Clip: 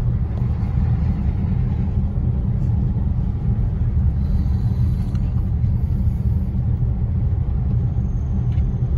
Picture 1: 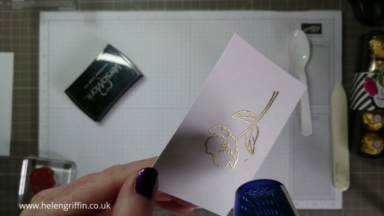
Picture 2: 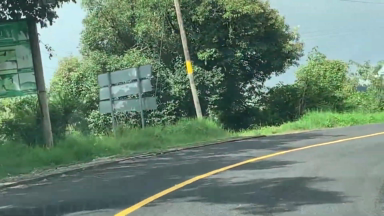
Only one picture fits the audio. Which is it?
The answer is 2